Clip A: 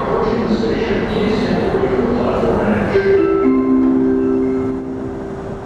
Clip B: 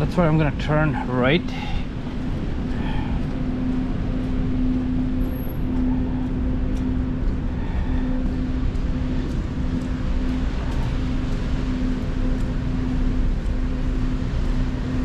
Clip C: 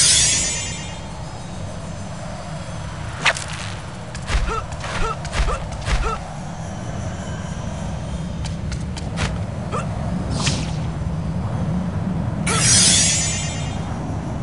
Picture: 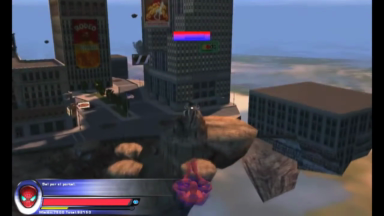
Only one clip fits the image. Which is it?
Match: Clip C